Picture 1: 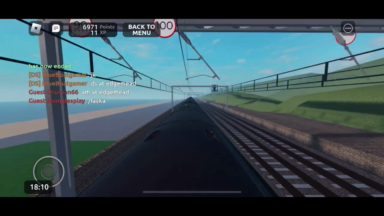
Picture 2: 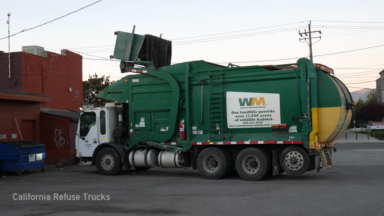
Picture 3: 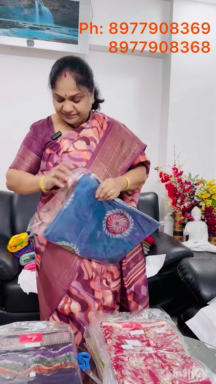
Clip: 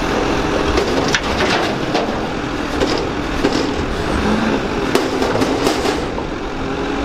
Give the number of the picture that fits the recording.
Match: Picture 2